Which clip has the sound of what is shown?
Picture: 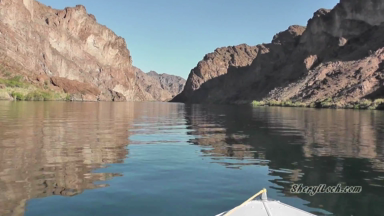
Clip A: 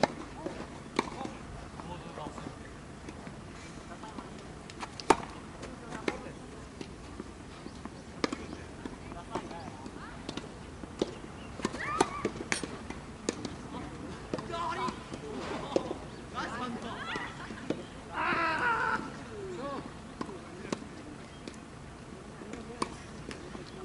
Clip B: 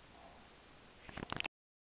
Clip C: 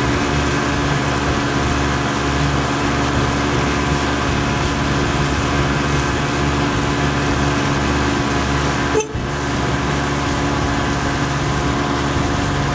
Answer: C